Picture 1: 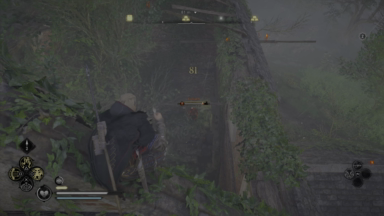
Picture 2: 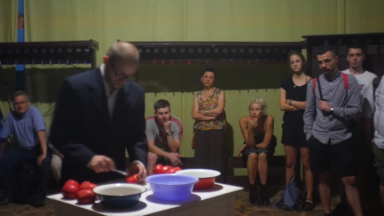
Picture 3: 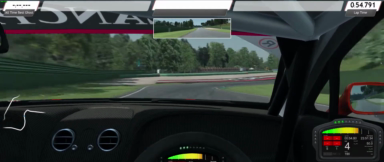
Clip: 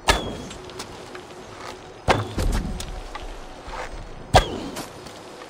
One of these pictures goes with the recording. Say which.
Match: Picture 1